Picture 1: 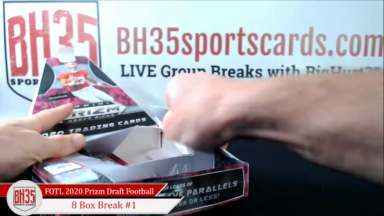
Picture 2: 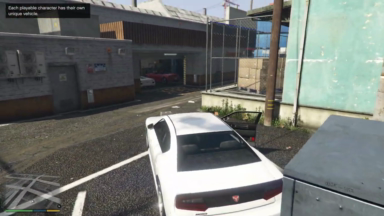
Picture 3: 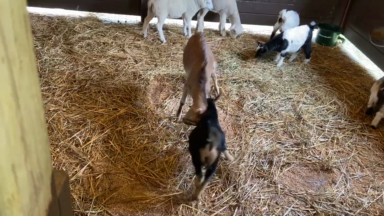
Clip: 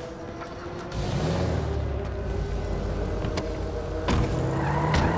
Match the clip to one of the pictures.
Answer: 2